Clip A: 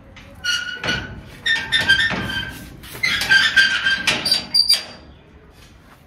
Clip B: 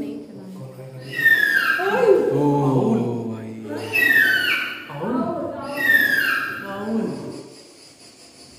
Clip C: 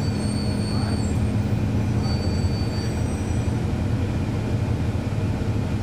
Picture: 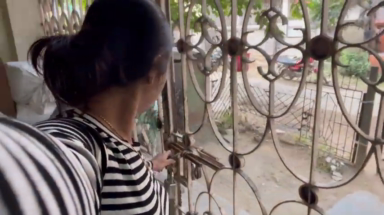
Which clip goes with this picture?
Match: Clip A